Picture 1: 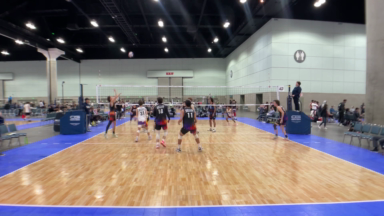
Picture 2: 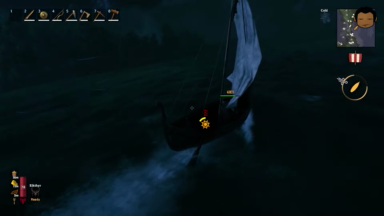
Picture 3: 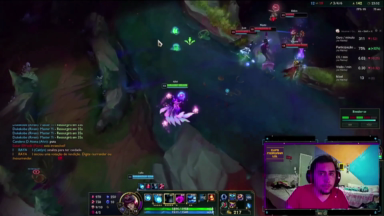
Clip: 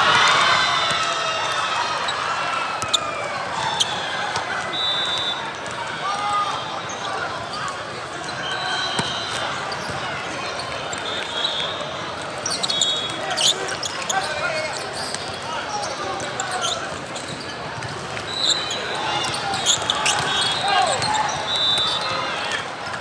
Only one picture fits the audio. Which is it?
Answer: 1